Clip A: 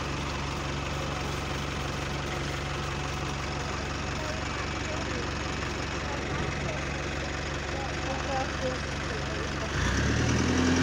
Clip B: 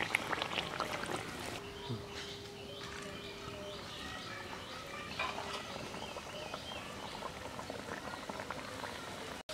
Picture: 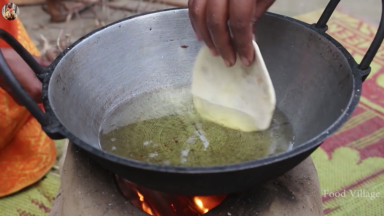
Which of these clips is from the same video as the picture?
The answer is B